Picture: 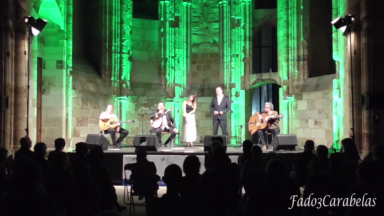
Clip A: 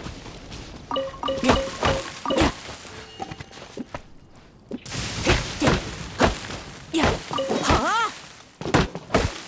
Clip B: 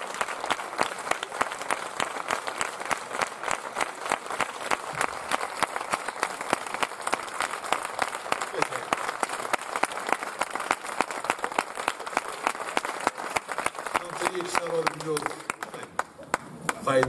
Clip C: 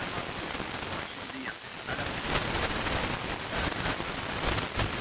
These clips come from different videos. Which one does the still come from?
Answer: B